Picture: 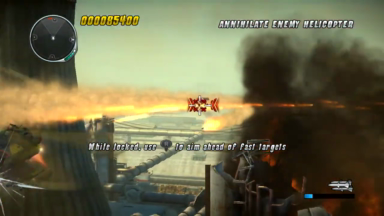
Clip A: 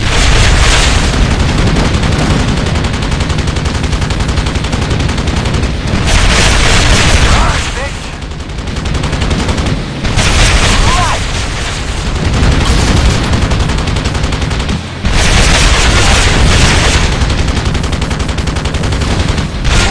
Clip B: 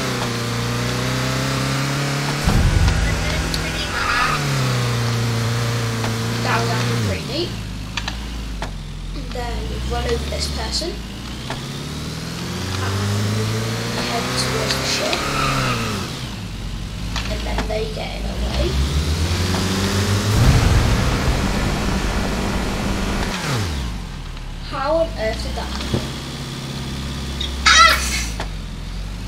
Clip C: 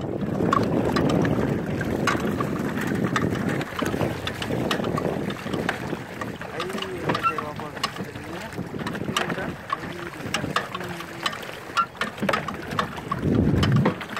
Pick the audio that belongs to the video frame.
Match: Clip A